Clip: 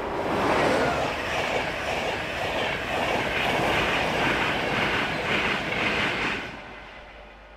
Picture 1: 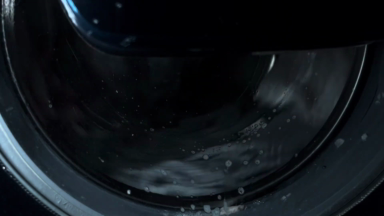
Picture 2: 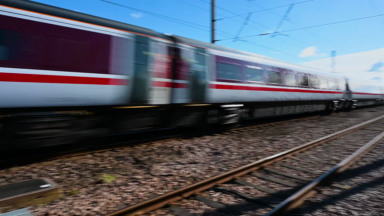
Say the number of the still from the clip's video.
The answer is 2